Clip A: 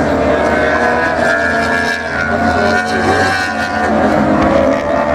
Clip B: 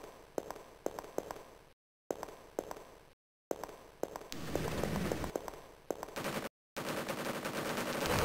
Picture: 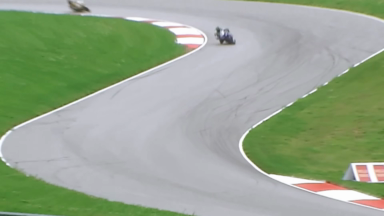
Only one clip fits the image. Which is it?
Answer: A